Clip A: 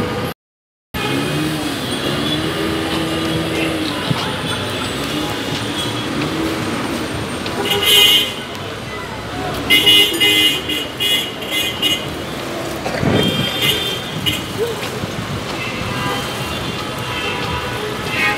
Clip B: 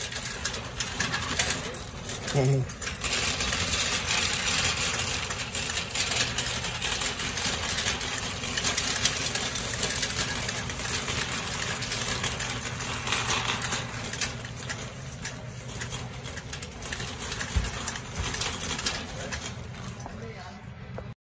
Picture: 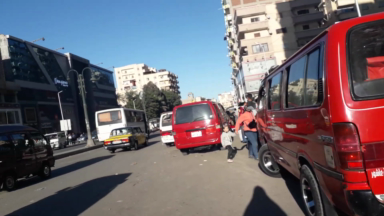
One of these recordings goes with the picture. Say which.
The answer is A